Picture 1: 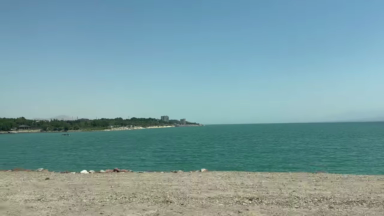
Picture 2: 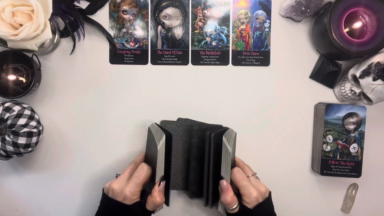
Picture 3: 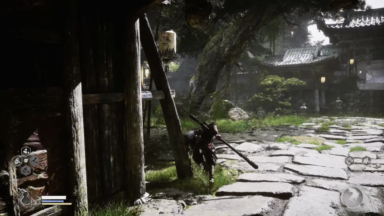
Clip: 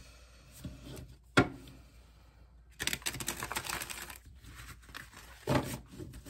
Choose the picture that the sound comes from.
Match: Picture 2